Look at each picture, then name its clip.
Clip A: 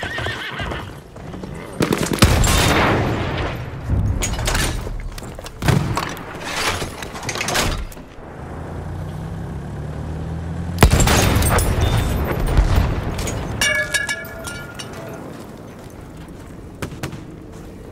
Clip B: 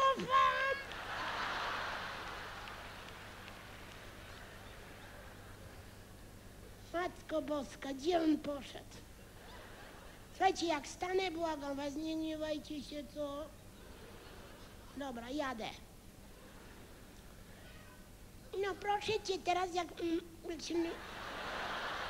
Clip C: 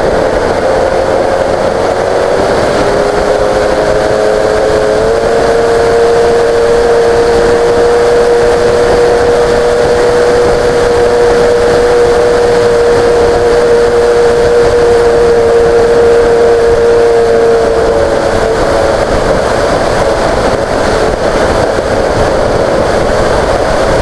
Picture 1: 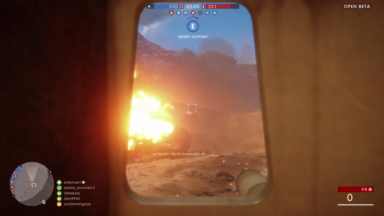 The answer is A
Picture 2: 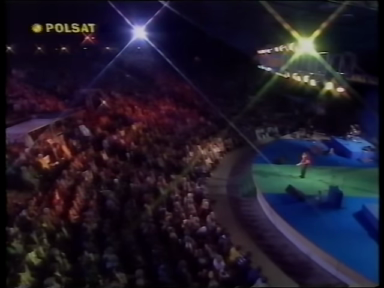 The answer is B